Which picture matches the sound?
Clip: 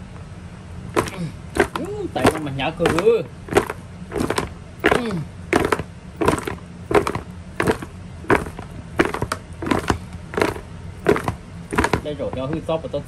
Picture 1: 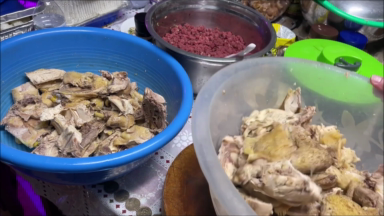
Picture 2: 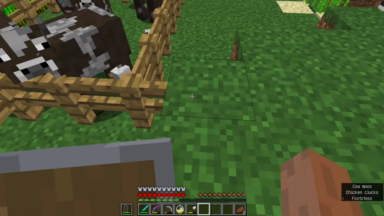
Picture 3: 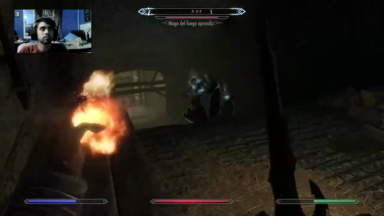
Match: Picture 1